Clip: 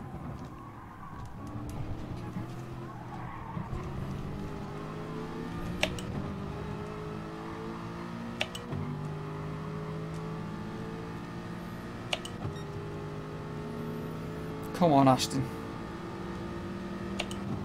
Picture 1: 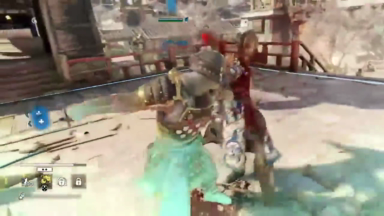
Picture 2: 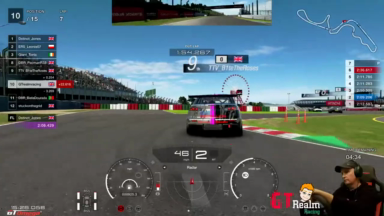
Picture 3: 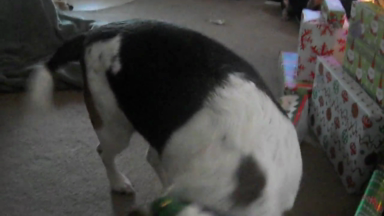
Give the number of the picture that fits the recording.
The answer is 2